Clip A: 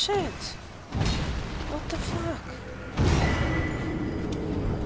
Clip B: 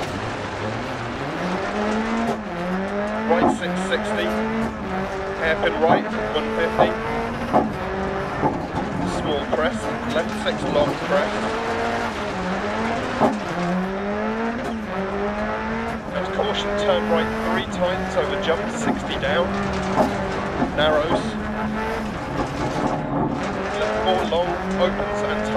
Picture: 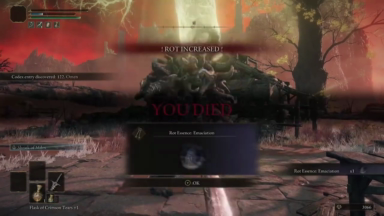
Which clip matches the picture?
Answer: A